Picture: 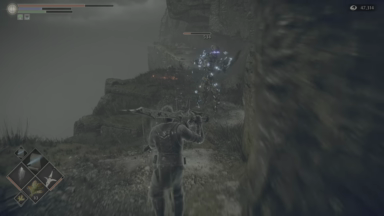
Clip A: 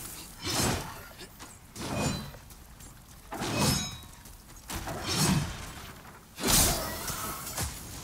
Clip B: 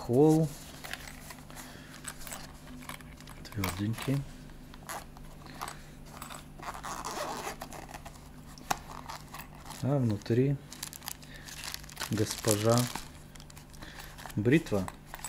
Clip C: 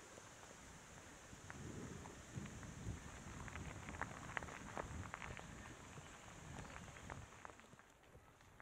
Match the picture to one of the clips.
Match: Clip A